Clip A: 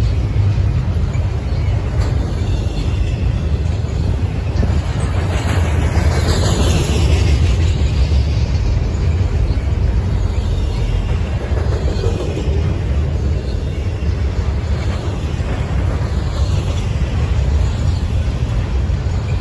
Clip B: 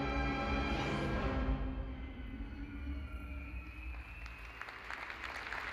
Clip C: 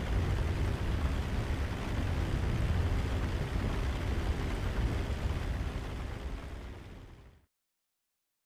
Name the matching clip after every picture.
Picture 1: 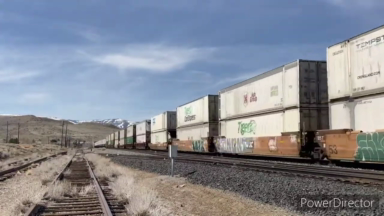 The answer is A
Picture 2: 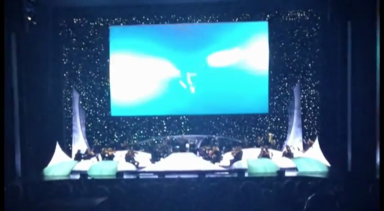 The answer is B